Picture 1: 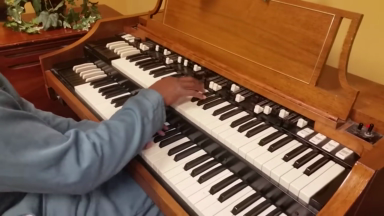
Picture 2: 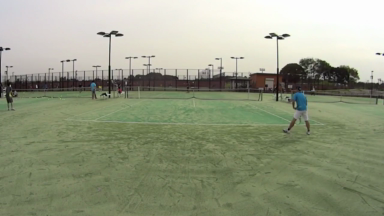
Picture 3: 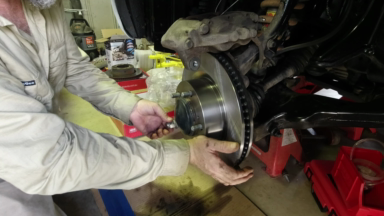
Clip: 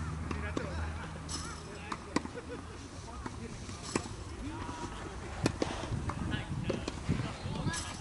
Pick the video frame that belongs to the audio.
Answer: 2